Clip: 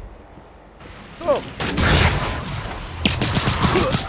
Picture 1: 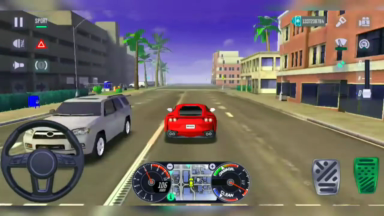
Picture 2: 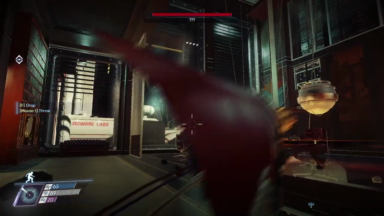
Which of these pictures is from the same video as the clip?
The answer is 2